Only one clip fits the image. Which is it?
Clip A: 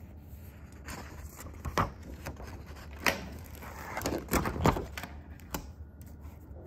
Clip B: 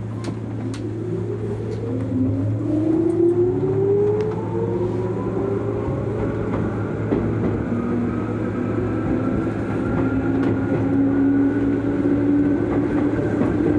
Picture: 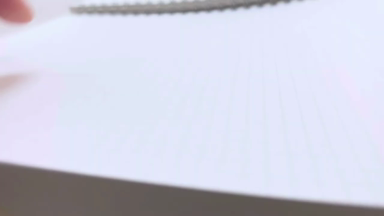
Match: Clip A